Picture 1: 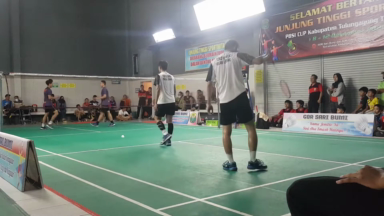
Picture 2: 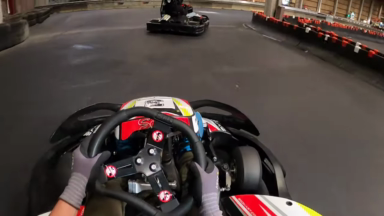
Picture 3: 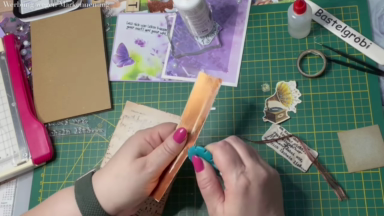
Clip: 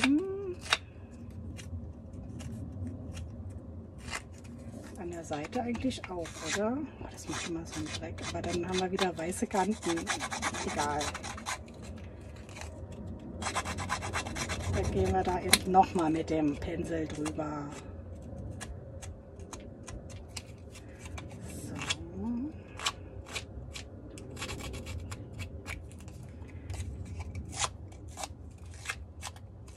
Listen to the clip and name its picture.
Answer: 3